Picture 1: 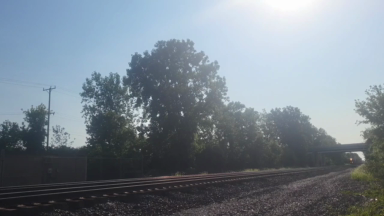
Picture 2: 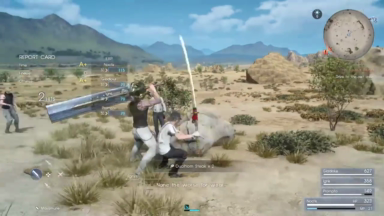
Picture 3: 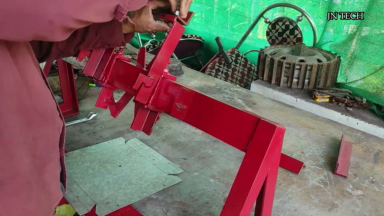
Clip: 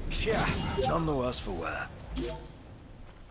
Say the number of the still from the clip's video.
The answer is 2